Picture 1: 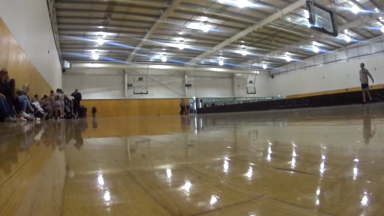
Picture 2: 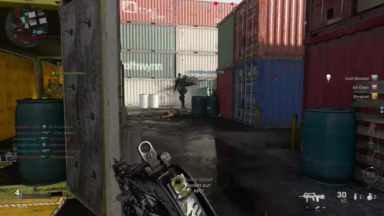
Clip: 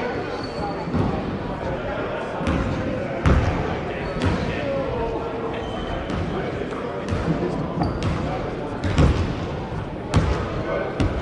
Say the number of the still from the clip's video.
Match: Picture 1